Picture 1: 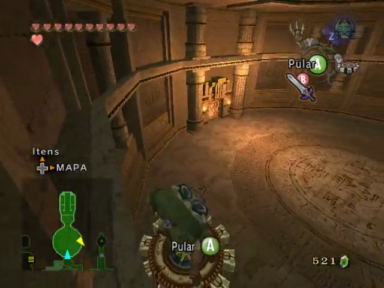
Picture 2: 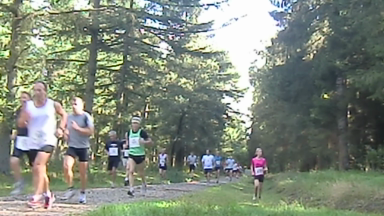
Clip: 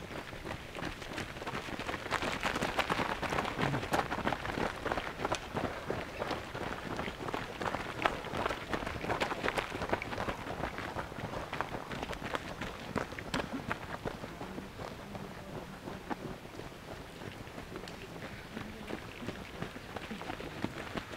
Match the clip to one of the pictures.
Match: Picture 2